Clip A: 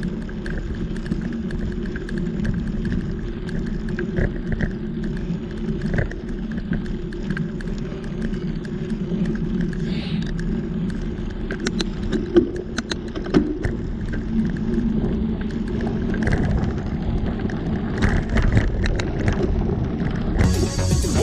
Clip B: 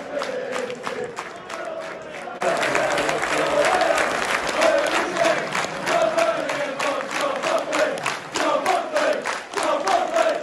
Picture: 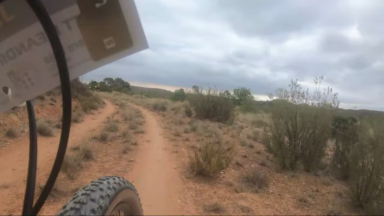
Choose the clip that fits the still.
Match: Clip A